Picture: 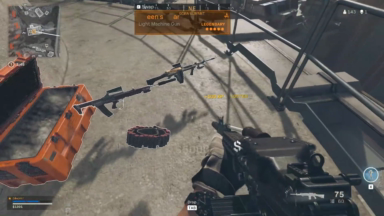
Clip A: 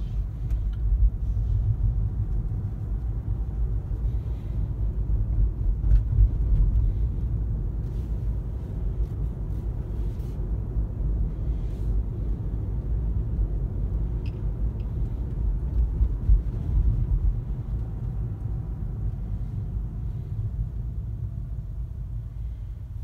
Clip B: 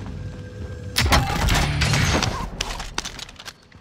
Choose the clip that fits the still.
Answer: B